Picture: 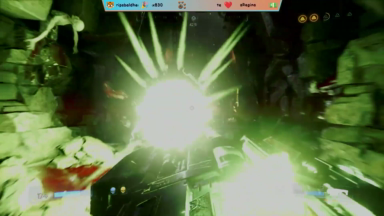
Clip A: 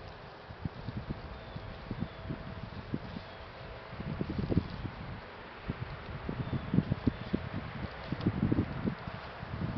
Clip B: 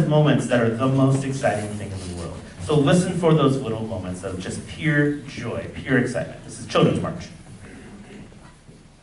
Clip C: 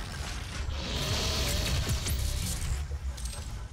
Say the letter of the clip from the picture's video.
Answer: C